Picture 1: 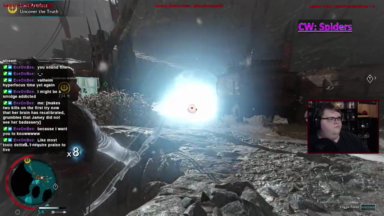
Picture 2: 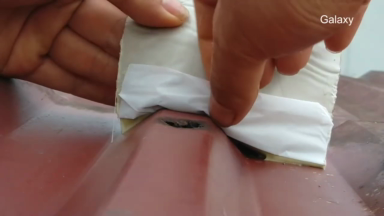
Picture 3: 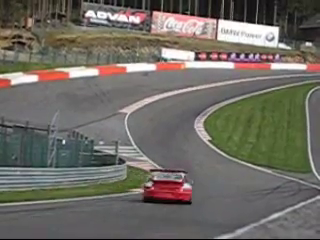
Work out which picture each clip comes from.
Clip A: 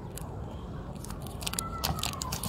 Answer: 2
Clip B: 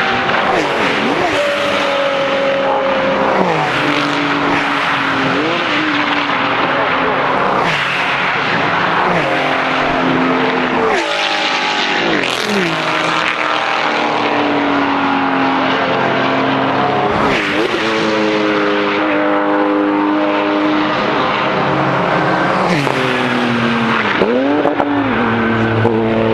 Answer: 3